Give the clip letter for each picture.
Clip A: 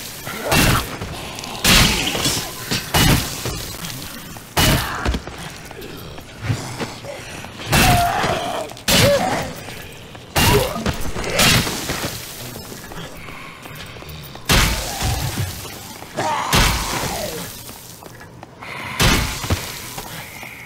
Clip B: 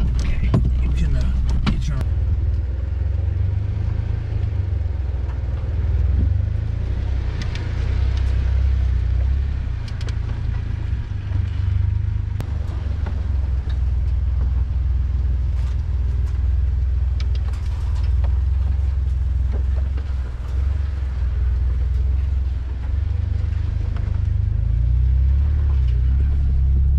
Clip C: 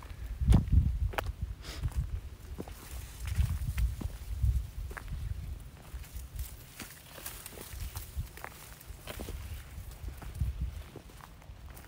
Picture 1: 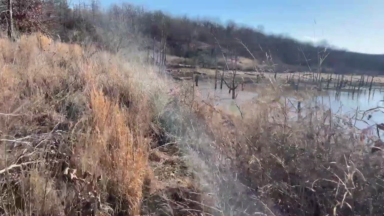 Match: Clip C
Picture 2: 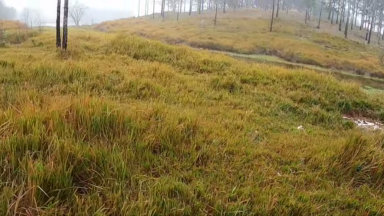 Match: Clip B